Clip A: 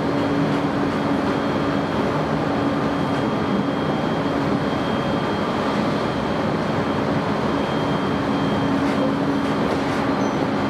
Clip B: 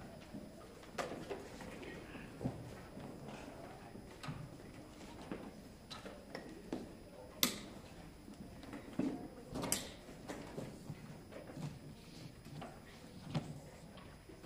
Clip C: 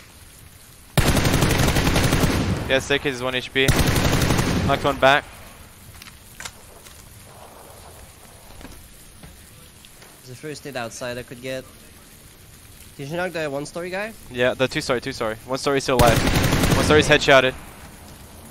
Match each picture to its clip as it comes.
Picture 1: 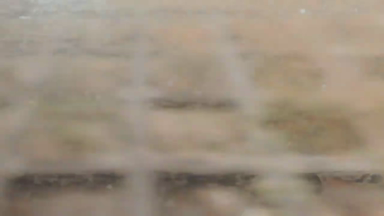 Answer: A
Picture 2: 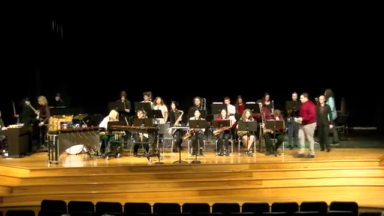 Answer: B